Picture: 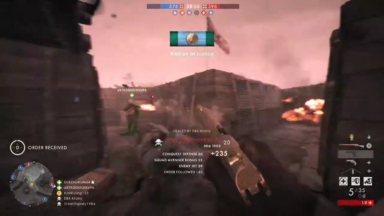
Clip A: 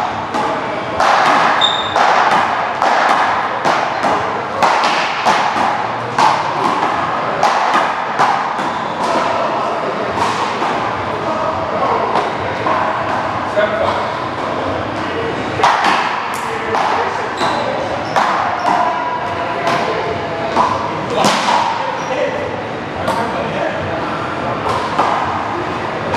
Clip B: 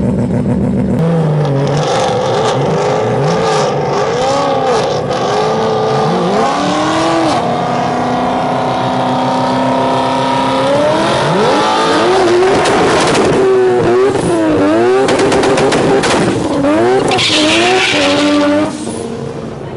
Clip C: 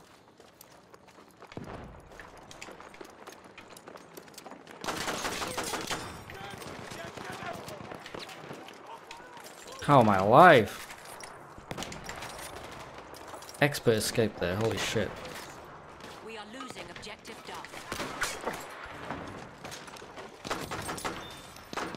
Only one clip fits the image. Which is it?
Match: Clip C